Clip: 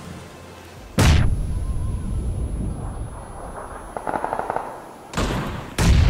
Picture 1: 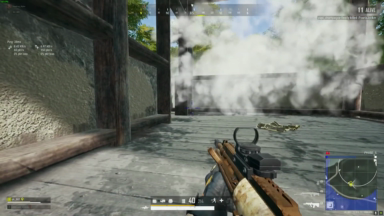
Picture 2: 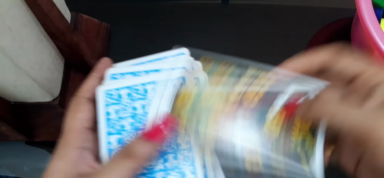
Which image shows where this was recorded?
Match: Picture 1